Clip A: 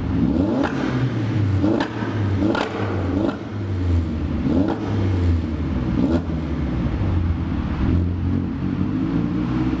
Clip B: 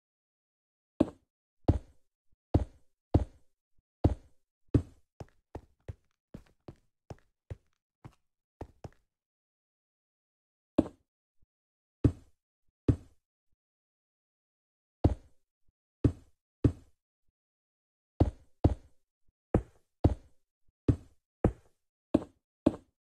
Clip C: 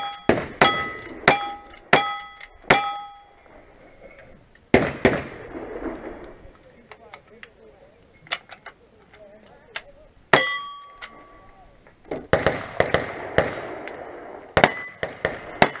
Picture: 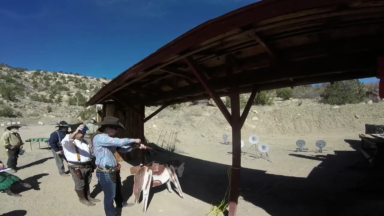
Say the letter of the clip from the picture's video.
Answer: C